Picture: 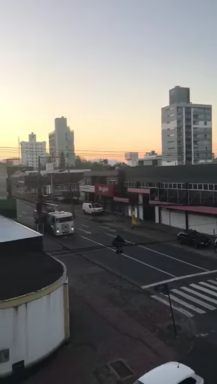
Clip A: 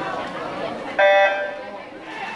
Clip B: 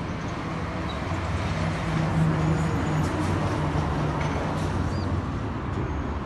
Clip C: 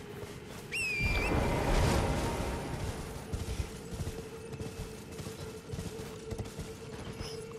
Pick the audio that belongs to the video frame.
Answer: B